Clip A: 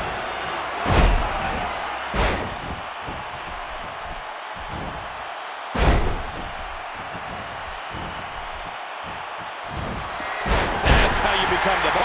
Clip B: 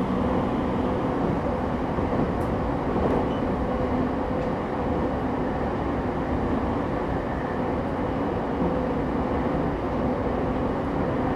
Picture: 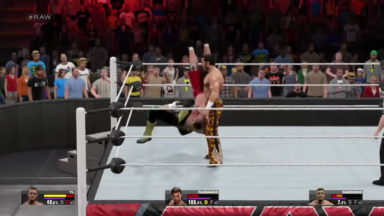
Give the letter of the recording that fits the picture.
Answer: A